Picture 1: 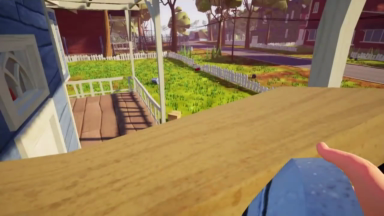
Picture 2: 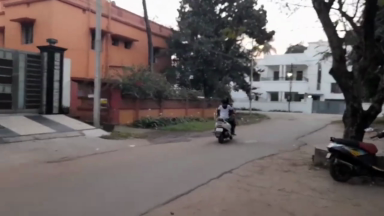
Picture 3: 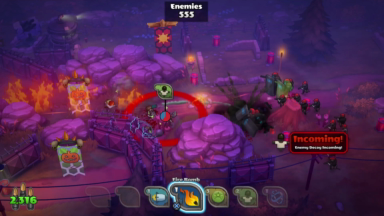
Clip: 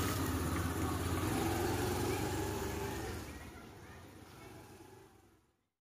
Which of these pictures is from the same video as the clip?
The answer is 2